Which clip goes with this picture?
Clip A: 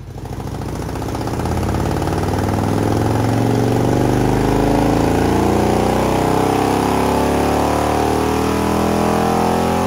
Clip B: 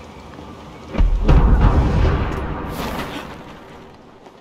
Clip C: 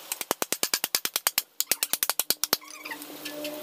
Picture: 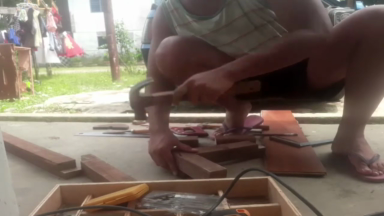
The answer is C